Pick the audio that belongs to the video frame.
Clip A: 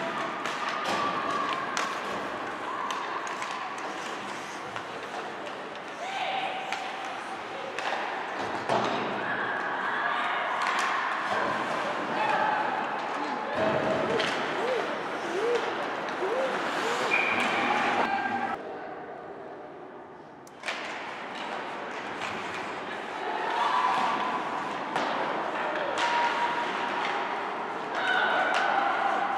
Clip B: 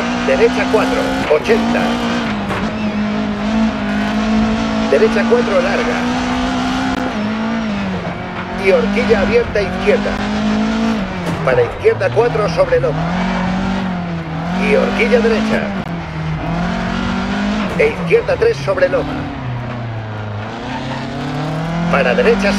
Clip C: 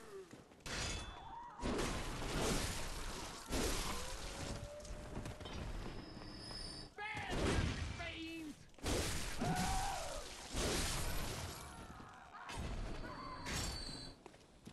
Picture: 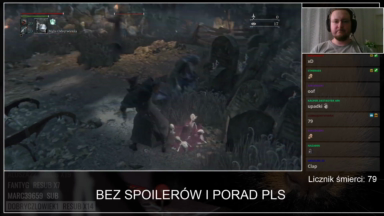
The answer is C